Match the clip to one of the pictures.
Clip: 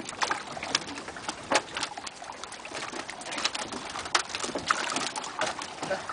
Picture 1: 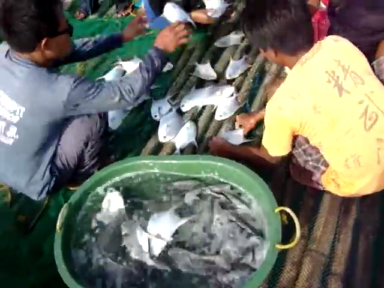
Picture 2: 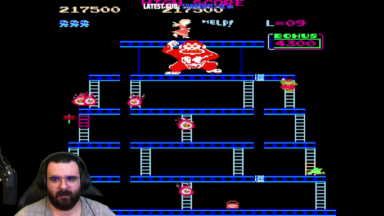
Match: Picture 1